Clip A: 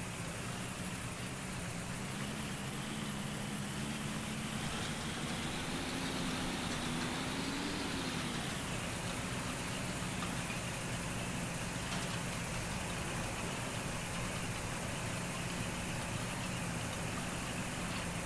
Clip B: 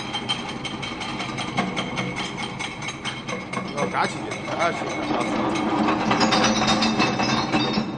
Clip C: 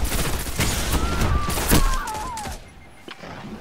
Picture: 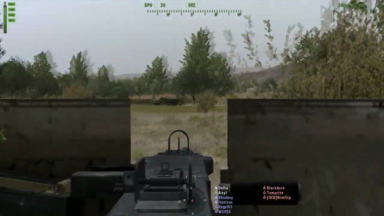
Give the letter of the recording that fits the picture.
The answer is A